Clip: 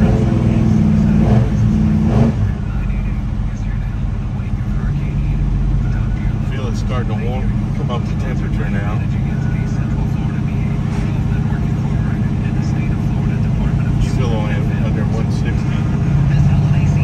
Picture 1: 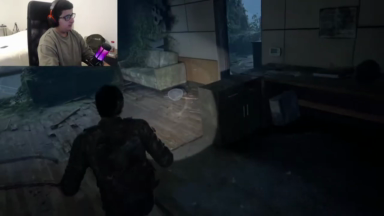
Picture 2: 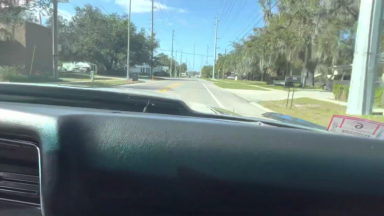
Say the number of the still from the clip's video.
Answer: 2